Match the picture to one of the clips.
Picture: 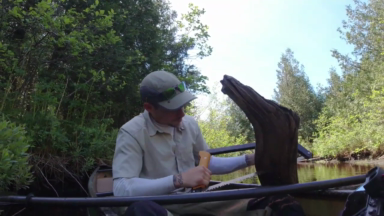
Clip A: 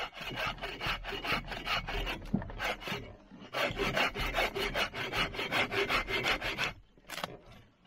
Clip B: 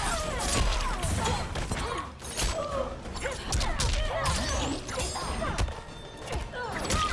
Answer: A